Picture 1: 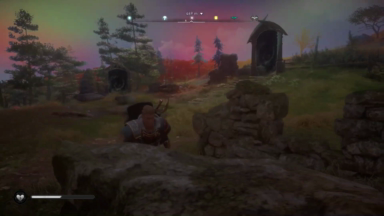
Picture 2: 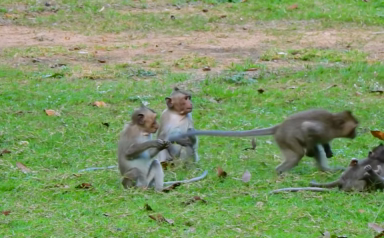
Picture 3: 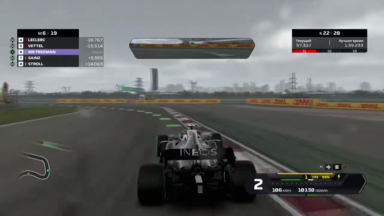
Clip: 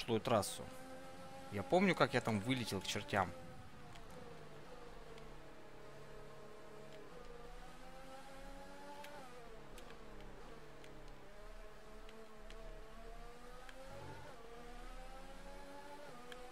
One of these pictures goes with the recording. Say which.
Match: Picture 3